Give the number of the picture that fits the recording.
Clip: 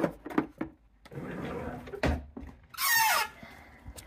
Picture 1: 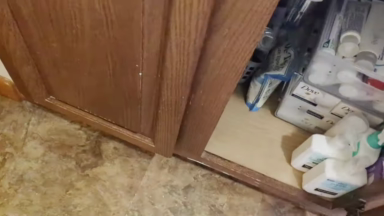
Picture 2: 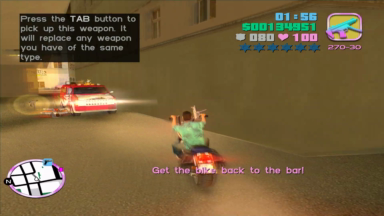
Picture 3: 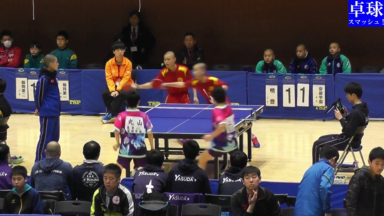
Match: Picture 1